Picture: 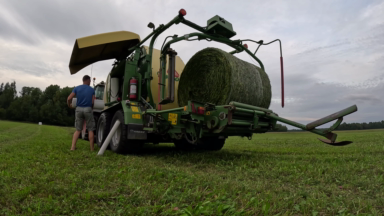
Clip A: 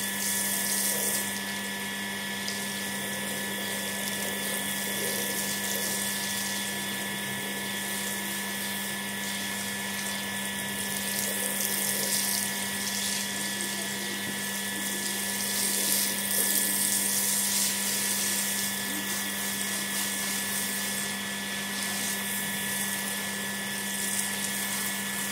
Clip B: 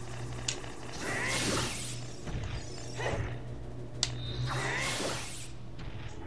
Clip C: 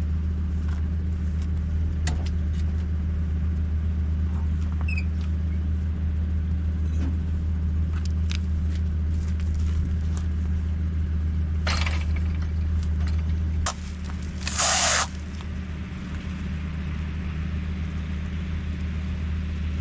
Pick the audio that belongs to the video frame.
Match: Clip C